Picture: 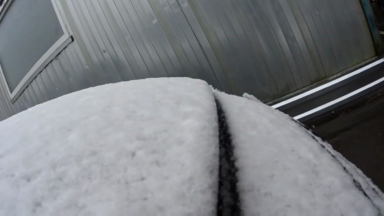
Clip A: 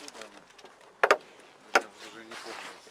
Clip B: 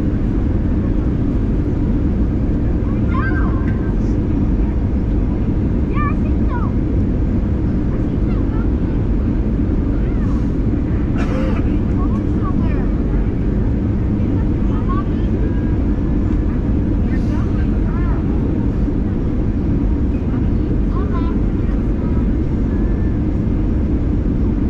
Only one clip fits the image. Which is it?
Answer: A